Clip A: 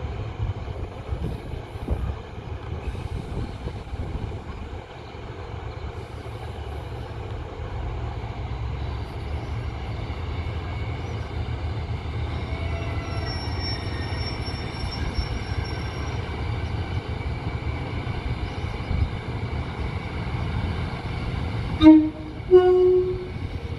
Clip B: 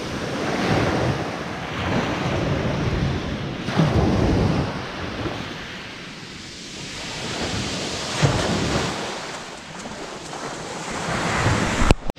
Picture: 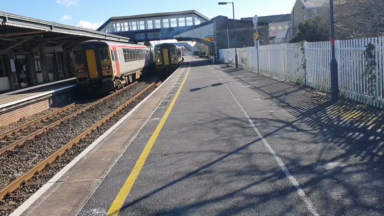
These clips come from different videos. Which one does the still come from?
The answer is A